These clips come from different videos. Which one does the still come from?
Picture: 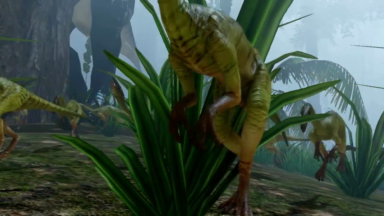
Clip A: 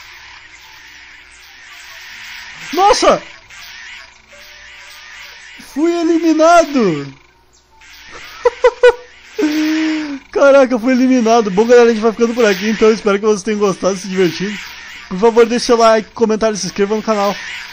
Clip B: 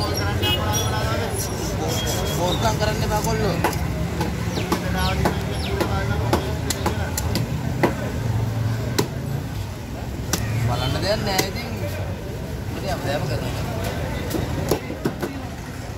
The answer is A